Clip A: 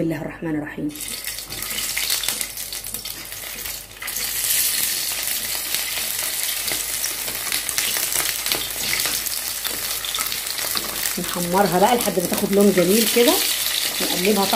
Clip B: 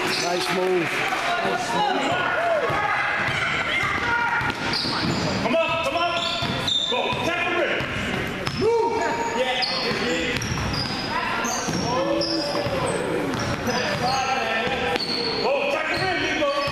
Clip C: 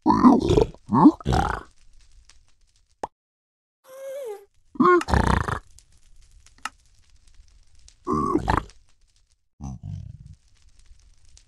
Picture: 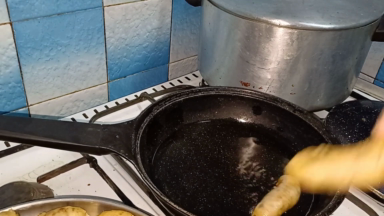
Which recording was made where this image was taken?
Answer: A